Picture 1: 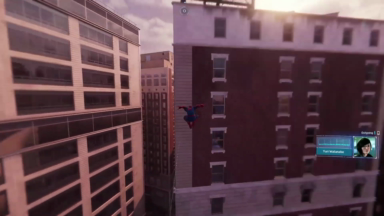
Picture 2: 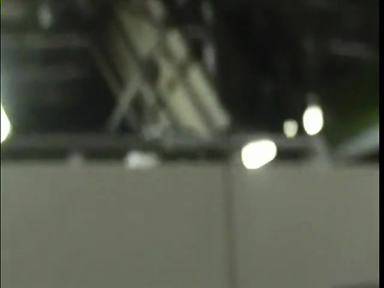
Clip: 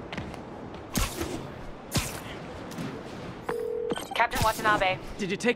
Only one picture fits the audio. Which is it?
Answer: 1